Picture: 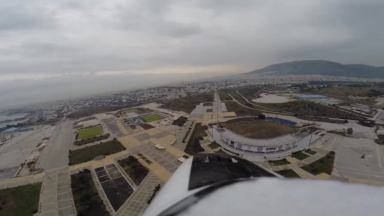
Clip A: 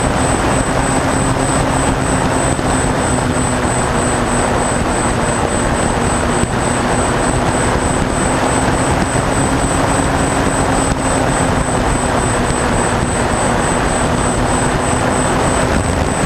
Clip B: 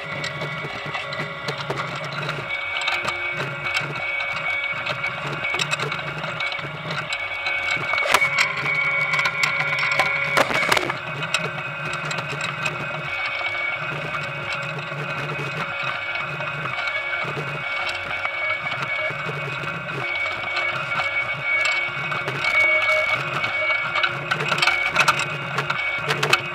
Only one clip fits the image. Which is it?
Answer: A